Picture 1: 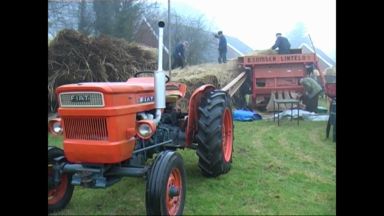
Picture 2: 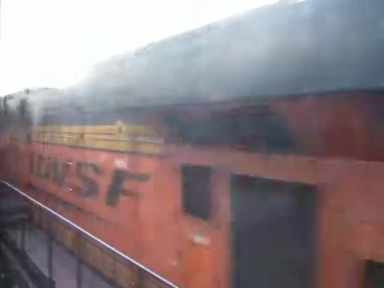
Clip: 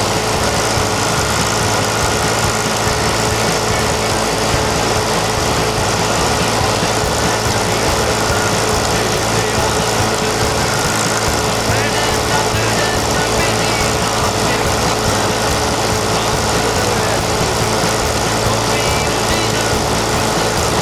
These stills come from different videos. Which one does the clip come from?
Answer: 1